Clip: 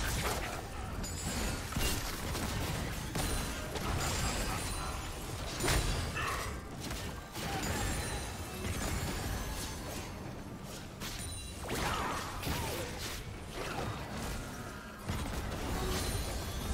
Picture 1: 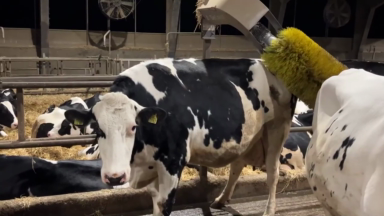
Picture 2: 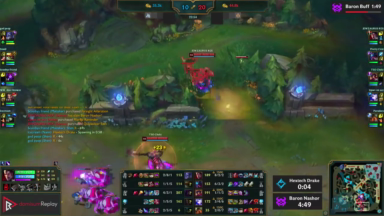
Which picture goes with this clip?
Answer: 2